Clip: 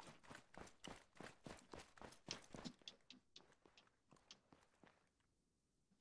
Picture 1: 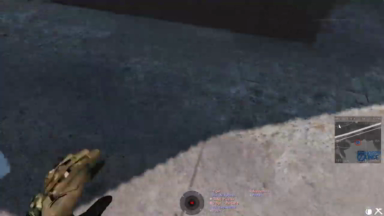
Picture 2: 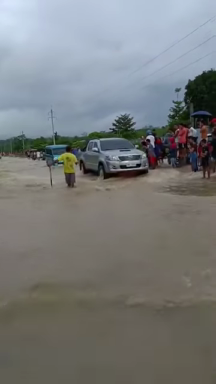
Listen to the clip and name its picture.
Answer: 1